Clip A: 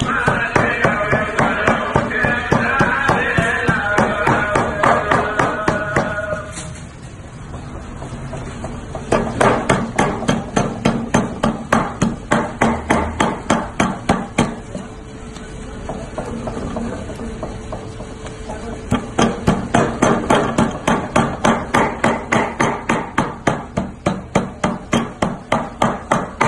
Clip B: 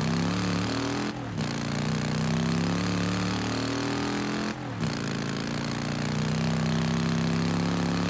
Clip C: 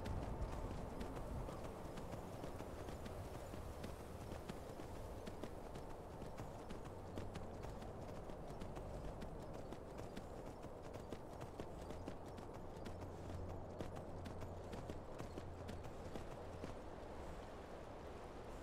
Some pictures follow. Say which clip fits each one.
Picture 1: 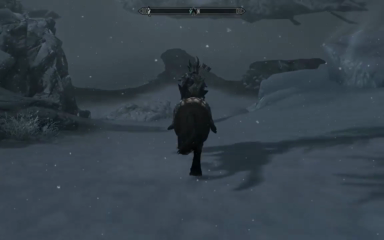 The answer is C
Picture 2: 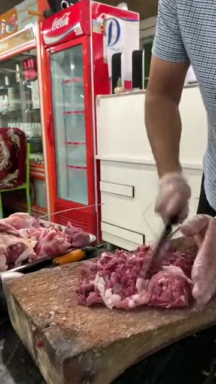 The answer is A